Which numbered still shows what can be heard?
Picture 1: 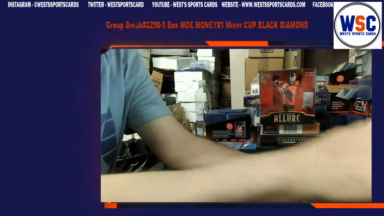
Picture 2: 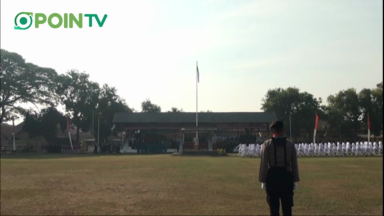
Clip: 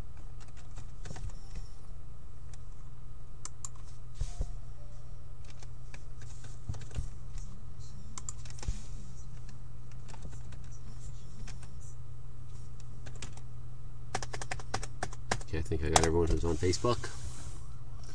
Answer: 1